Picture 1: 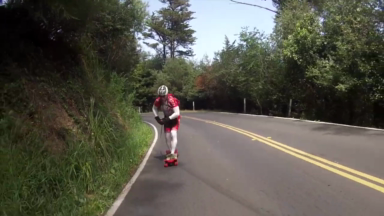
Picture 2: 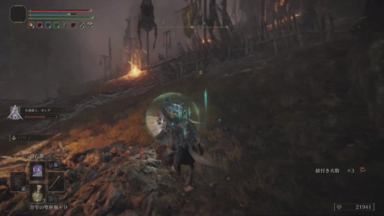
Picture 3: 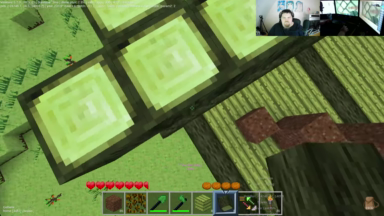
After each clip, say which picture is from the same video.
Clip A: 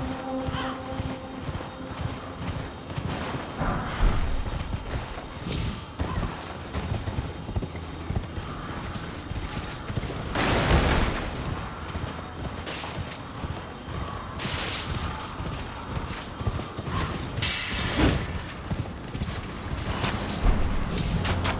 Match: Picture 2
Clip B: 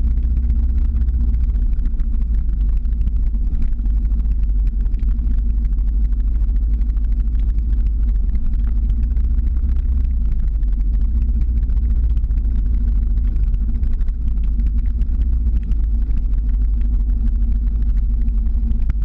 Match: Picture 1